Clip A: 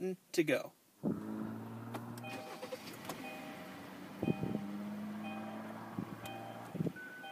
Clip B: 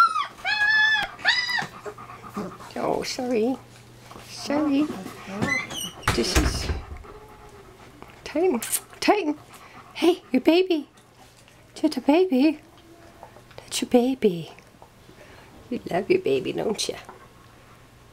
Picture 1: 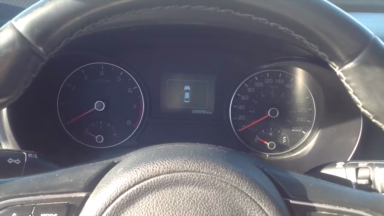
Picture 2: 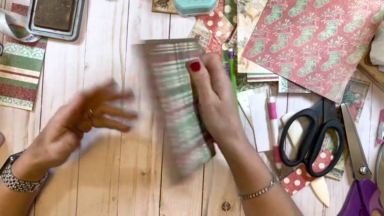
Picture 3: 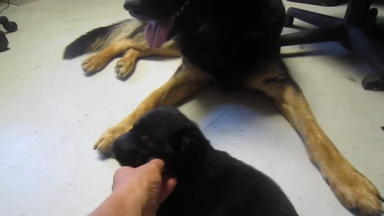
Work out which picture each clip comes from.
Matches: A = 1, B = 3